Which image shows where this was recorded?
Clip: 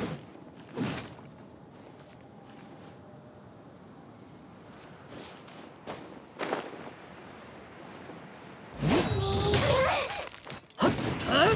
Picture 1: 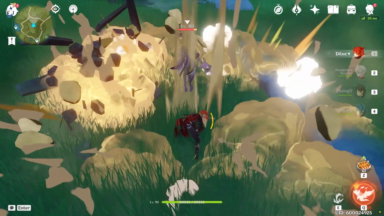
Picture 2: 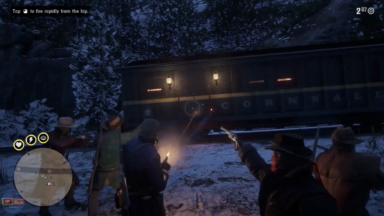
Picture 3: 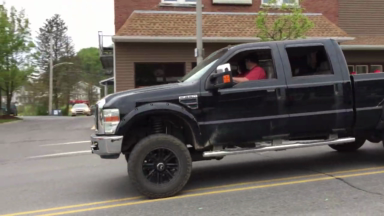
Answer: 1